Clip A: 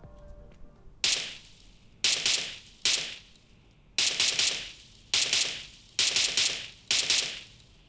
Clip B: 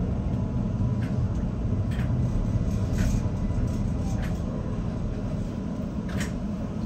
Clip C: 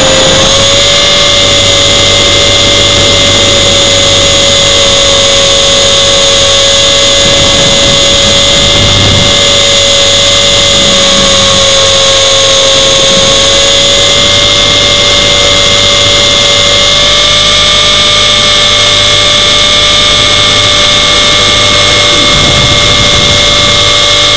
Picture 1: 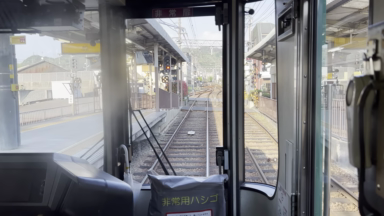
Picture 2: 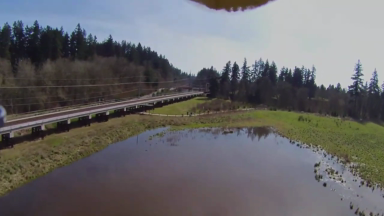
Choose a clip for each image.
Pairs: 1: B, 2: C